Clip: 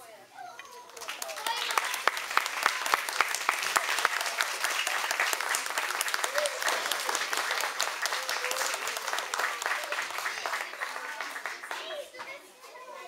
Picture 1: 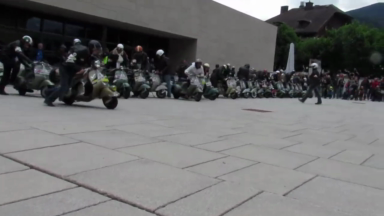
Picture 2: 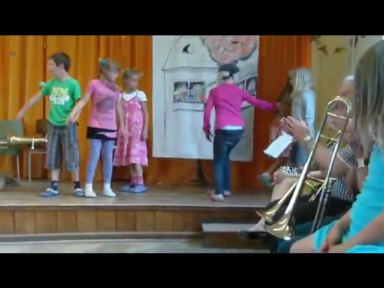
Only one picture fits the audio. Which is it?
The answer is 2